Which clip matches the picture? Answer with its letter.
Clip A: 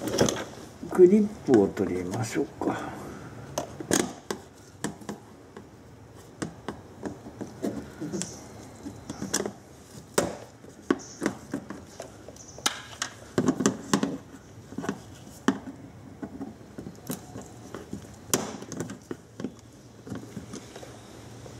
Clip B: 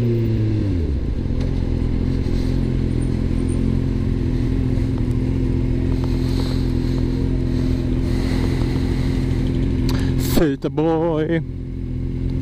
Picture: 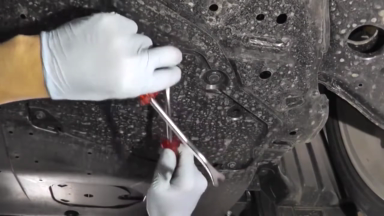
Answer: A